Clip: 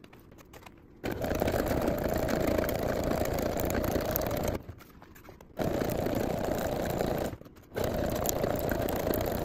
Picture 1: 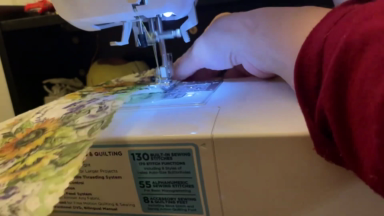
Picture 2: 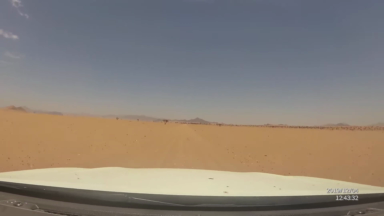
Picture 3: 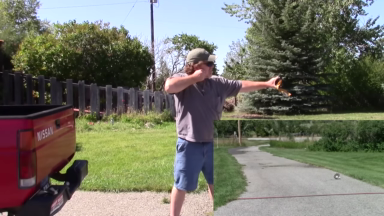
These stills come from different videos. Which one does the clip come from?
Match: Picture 1